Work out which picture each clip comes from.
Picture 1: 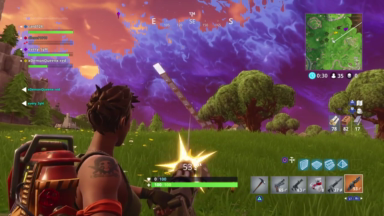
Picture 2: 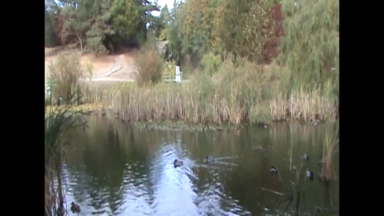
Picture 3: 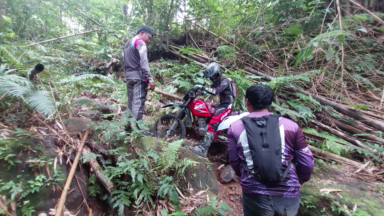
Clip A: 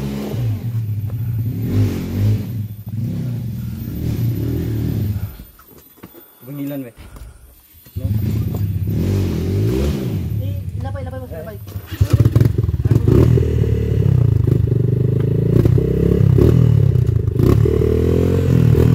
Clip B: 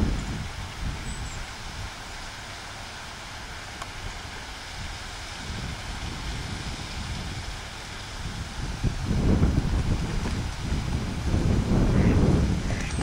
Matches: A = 3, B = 2